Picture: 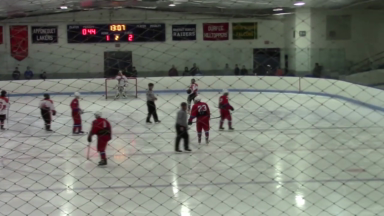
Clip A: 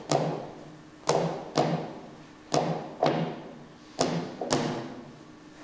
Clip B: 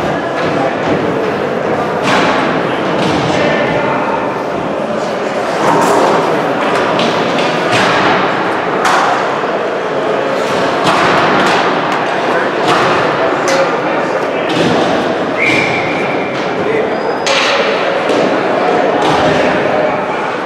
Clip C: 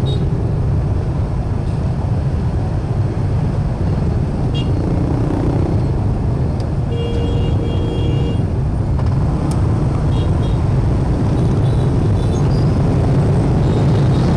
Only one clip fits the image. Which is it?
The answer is B